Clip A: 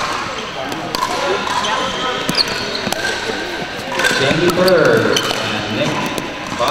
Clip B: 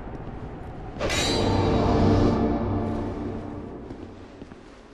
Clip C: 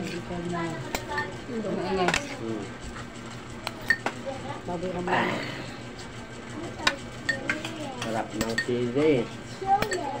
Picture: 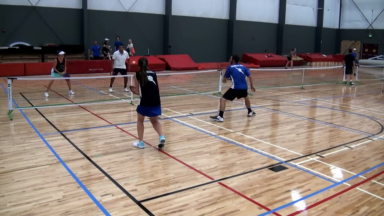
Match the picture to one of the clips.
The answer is A